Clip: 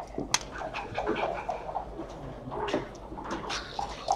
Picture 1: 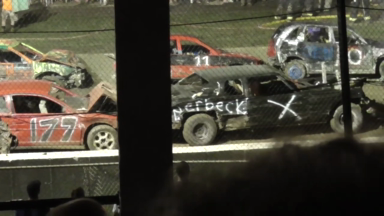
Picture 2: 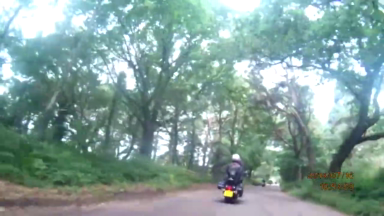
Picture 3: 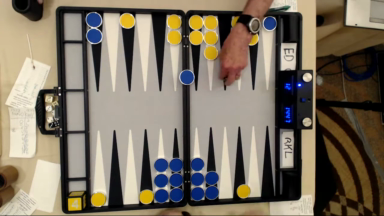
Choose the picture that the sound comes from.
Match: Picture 3